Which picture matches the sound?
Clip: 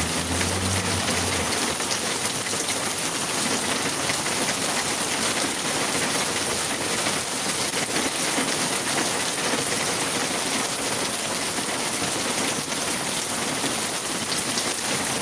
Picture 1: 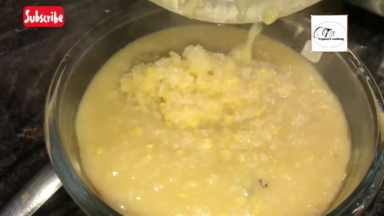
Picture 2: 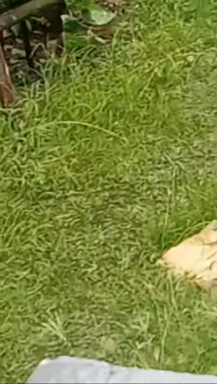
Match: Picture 2